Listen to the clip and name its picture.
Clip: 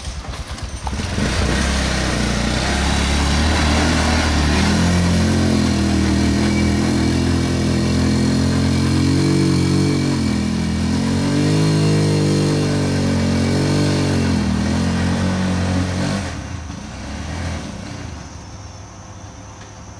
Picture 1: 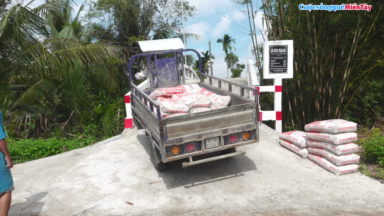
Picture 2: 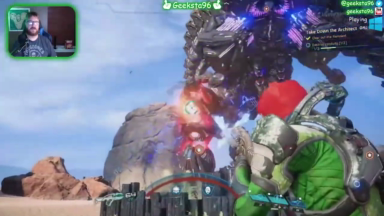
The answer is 1